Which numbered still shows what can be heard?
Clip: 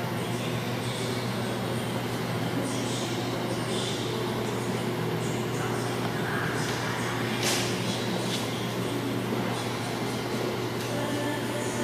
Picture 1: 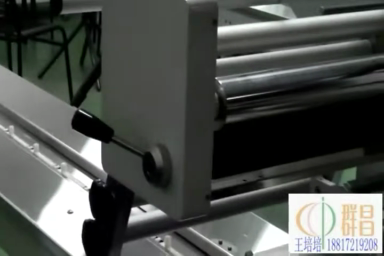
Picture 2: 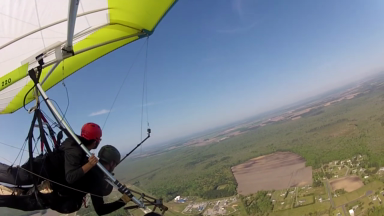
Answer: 1